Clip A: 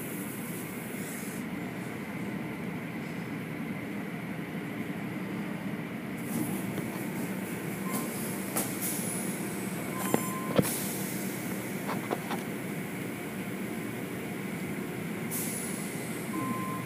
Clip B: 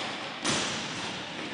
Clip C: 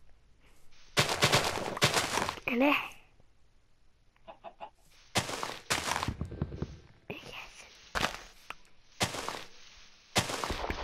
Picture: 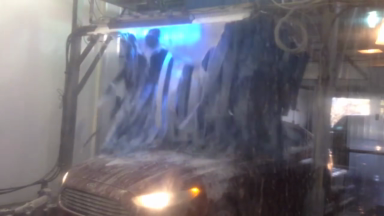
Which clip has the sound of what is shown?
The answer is A